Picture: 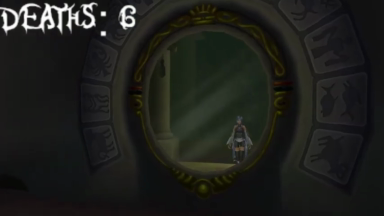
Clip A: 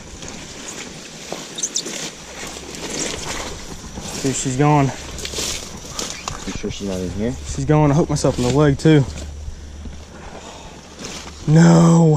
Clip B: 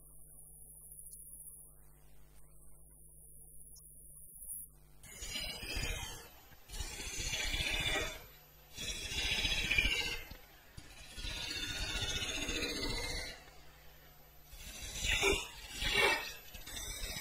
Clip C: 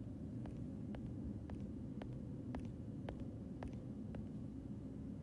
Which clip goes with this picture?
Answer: C